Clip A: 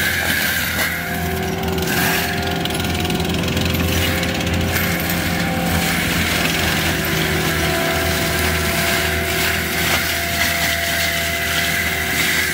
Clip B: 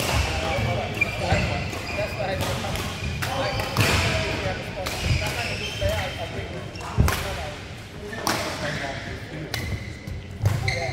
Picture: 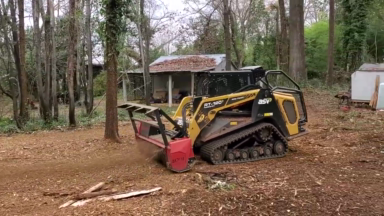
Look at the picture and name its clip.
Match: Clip A